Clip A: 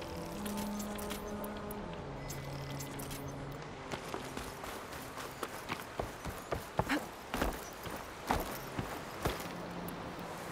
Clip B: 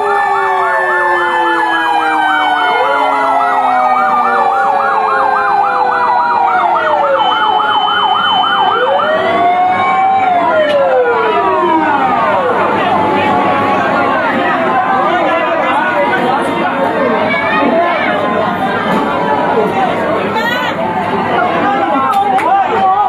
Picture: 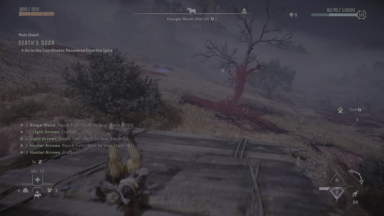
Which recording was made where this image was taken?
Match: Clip A